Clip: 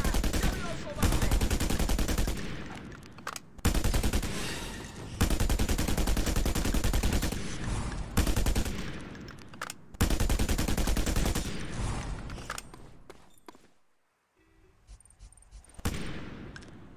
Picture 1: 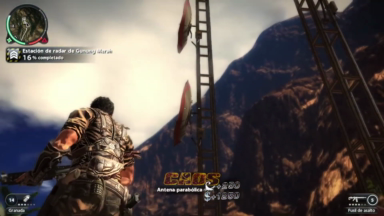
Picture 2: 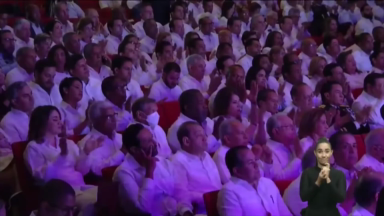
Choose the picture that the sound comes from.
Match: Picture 1